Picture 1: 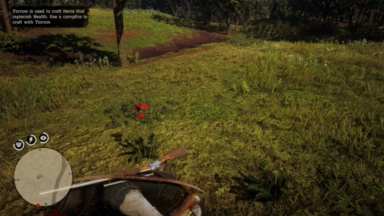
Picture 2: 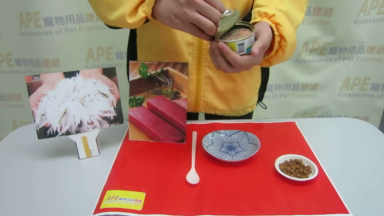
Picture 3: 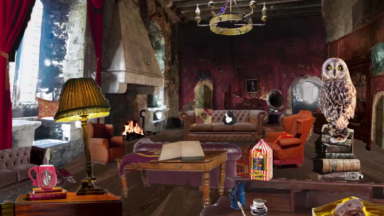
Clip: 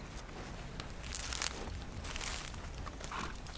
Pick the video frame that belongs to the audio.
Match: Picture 1